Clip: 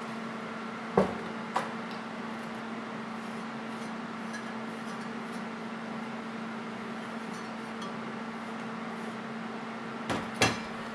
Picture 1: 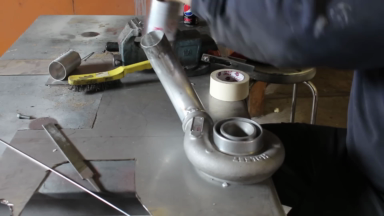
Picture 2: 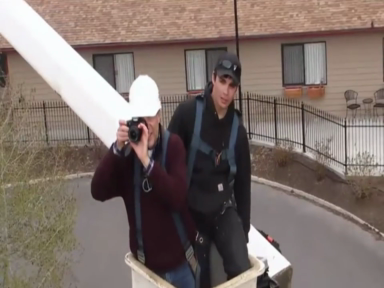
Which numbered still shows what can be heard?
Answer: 1